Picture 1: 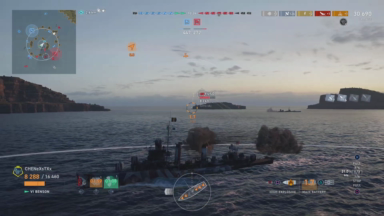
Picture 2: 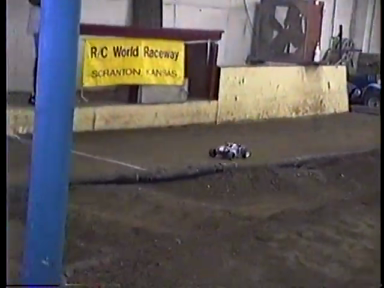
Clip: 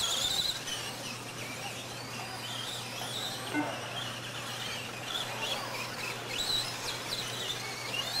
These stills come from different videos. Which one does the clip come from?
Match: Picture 2